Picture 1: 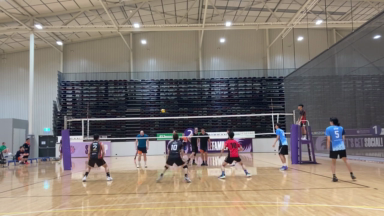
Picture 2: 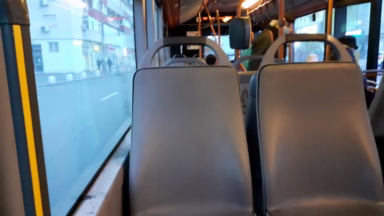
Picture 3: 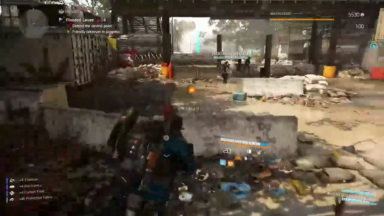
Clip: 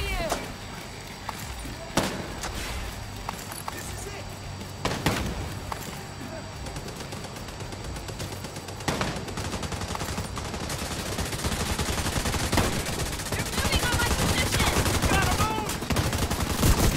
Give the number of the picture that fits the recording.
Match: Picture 3